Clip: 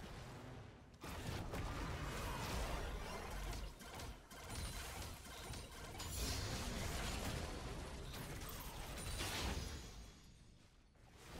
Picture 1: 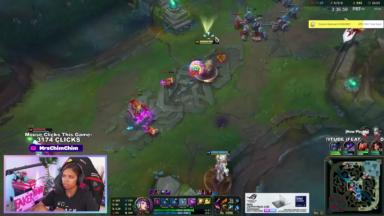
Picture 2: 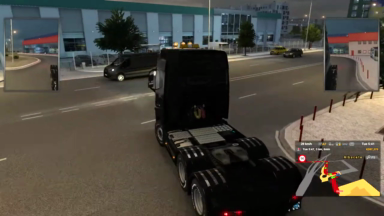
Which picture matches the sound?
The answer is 1